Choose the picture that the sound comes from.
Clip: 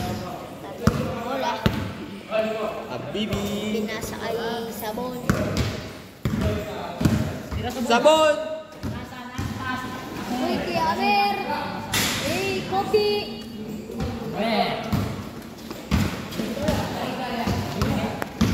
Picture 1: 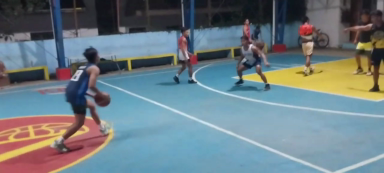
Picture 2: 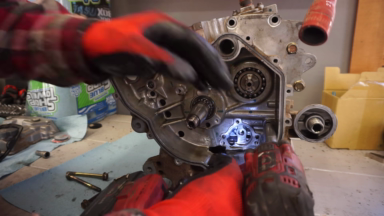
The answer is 1